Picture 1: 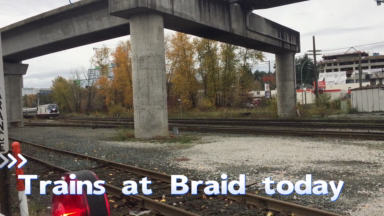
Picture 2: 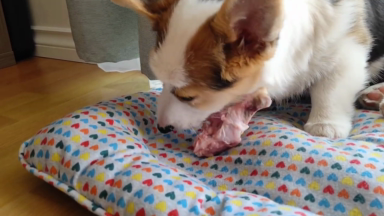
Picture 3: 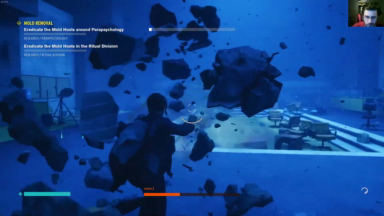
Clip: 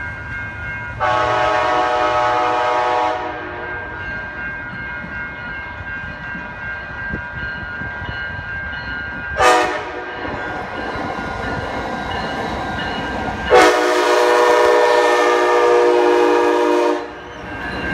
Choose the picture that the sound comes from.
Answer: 1